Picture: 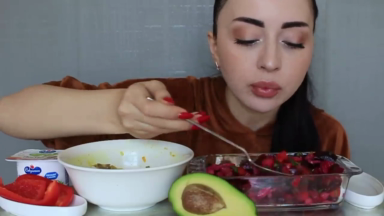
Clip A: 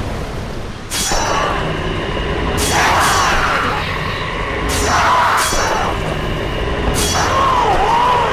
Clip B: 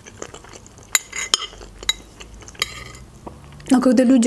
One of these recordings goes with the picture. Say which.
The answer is B